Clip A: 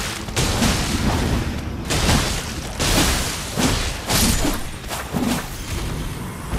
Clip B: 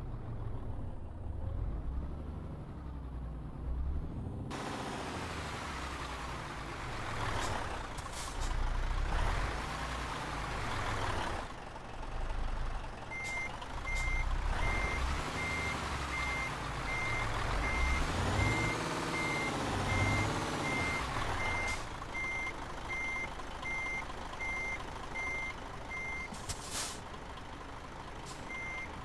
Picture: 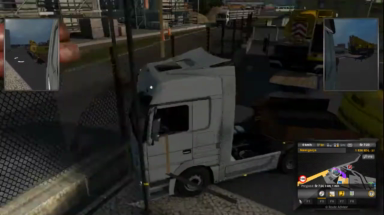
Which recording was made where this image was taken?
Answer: B